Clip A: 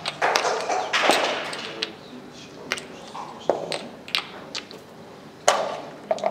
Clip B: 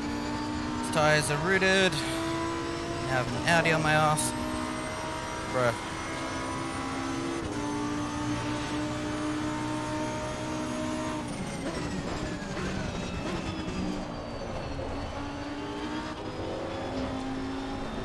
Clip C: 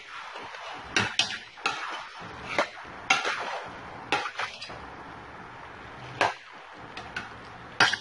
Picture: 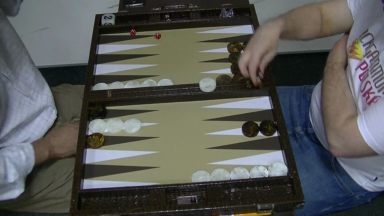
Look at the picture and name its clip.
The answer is A